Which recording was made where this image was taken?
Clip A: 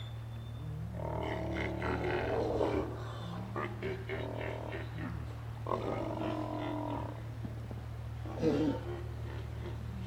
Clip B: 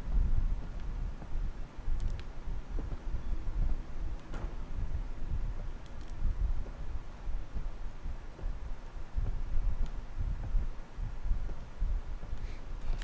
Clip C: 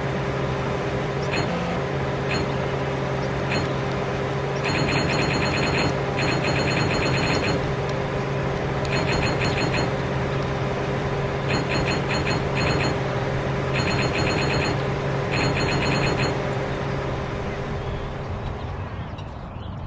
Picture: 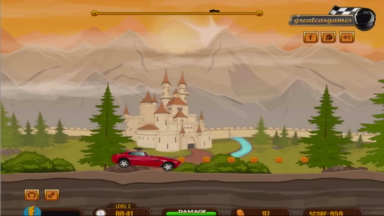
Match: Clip C